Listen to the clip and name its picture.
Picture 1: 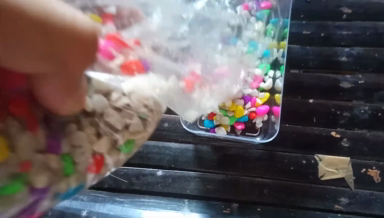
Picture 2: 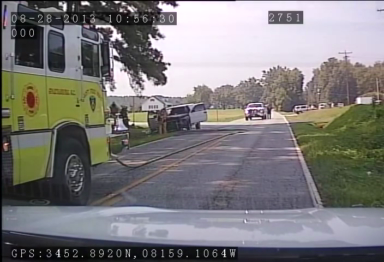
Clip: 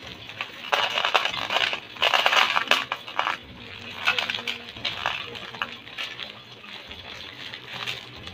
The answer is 1